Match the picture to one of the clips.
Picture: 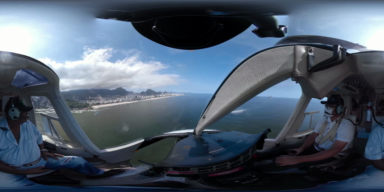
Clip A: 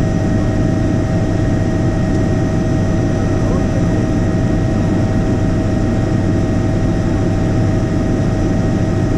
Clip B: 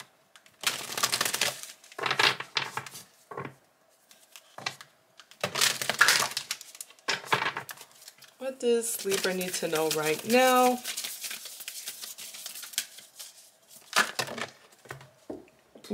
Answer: A